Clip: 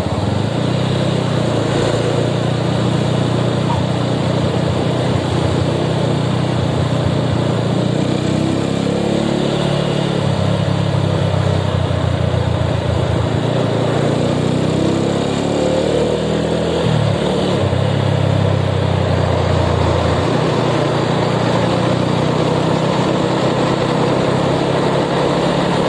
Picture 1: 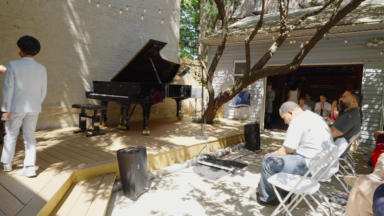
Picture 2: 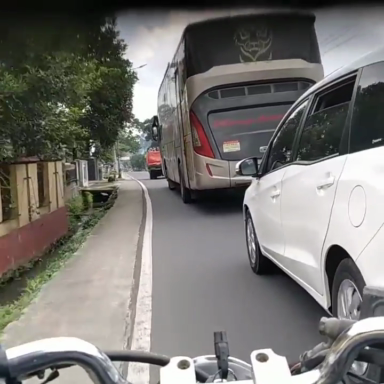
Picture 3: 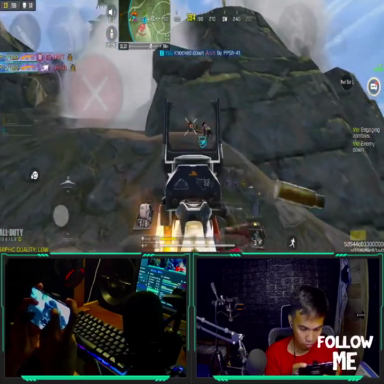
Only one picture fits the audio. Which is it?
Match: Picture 2